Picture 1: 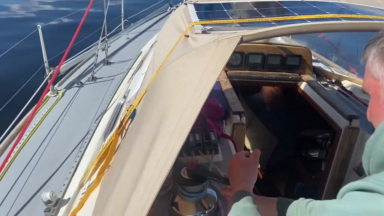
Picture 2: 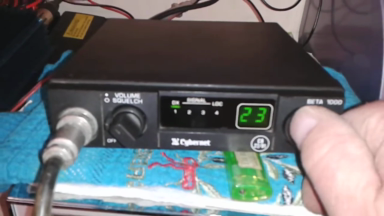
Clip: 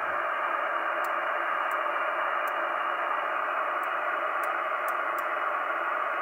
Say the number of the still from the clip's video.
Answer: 2